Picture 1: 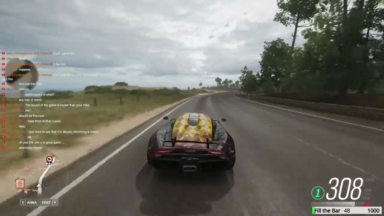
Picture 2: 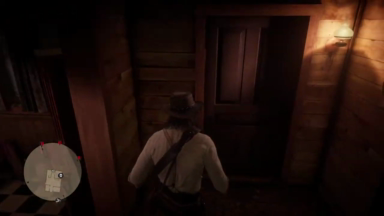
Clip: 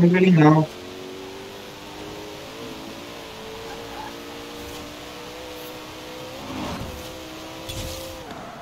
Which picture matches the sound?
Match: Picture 1